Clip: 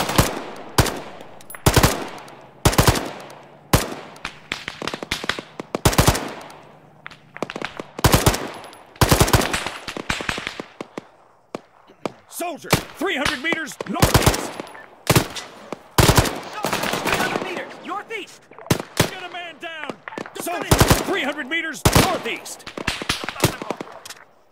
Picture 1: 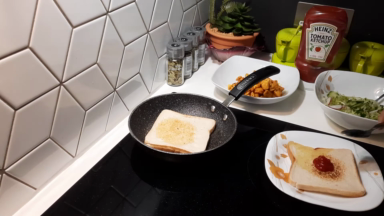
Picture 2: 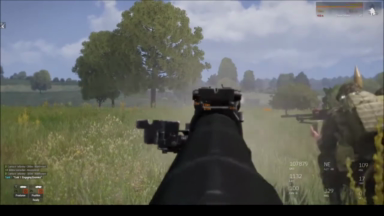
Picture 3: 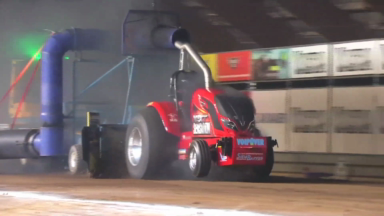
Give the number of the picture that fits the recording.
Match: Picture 2